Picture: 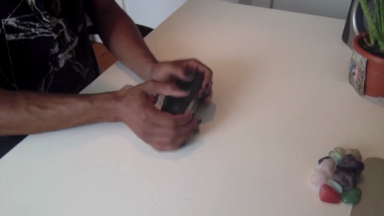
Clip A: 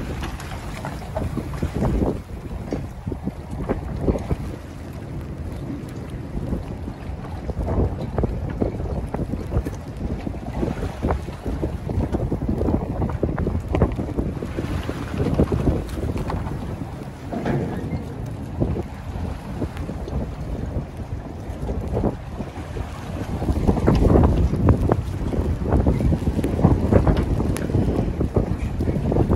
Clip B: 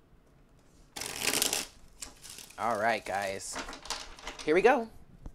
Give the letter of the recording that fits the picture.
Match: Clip B